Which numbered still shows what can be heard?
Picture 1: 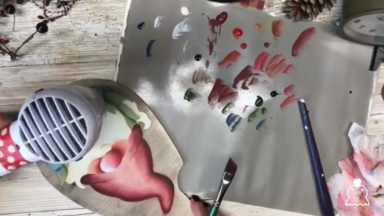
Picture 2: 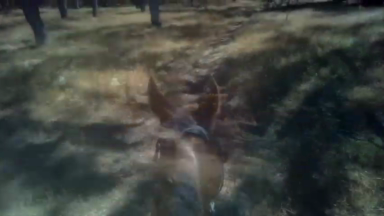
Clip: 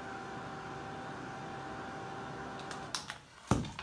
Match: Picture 1